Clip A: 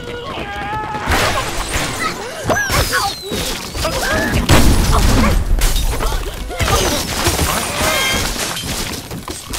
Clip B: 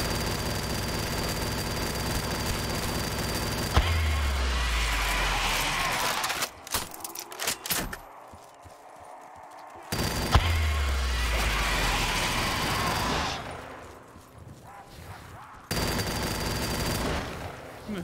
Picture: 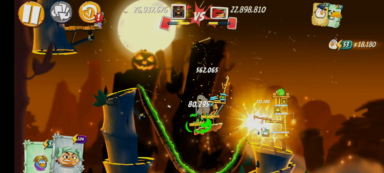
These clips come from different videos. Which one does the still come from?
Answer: A